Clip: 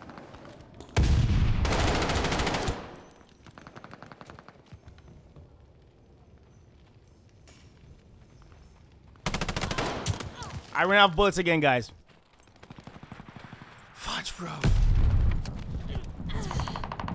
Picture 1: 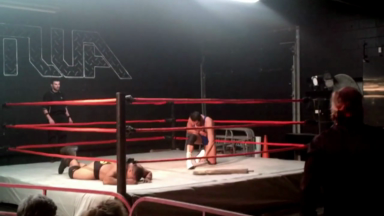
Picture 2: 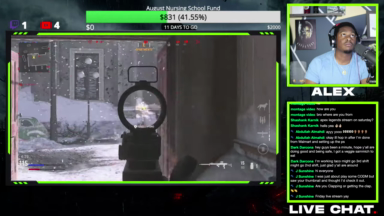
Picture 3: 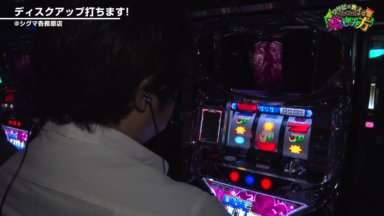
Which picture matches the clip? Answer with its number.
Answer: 2